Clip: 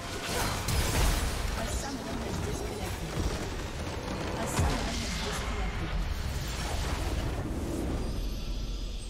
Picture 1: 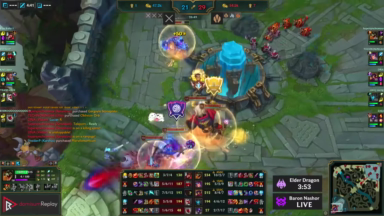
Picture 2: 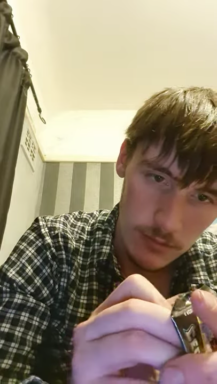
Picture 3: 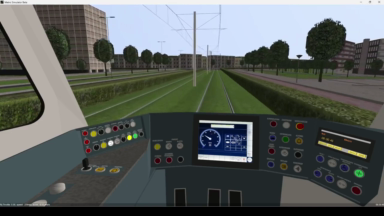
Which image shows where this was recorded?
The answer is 1